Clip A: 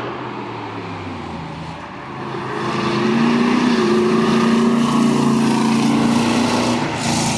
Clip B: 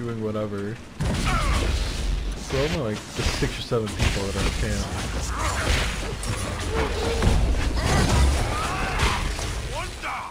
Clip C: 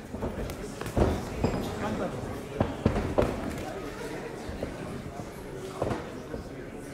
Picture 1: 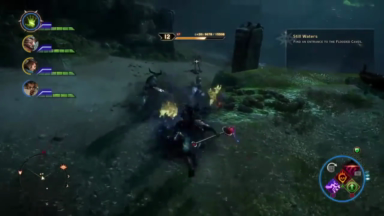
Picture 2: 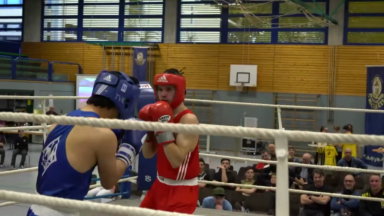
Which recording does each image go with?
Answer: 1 B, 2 C